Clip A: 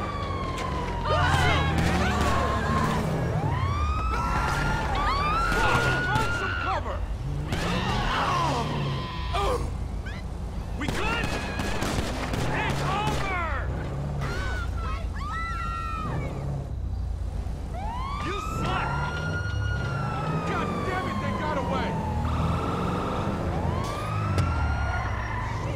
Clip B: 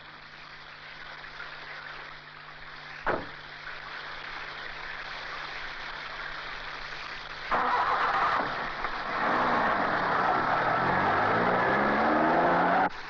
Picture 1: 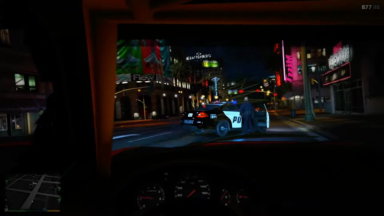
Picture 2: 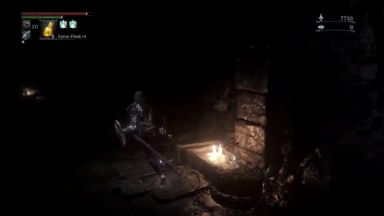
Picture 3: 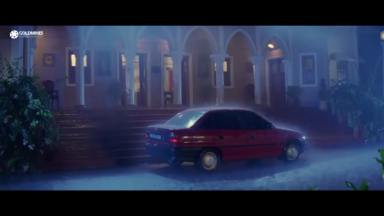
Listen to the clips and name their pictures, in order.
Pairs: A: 1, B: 3